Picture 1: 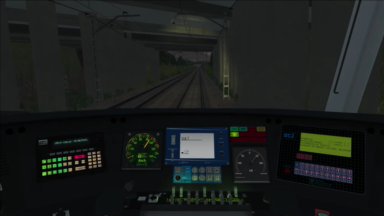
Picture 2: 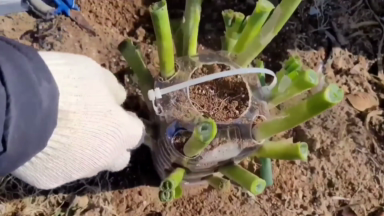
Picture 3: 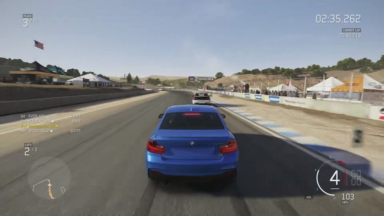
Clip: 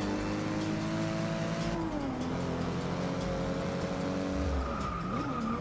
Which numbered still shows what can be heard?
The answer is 3